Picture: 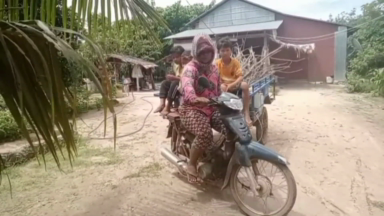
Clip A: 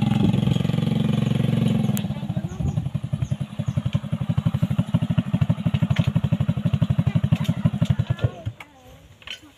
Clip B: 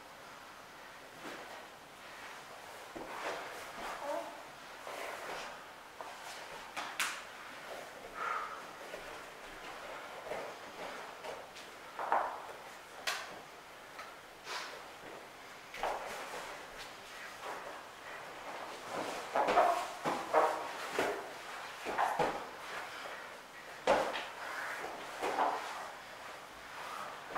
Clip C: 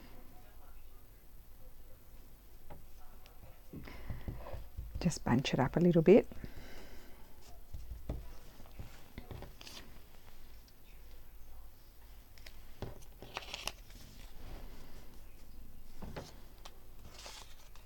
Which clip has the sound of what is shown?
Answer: A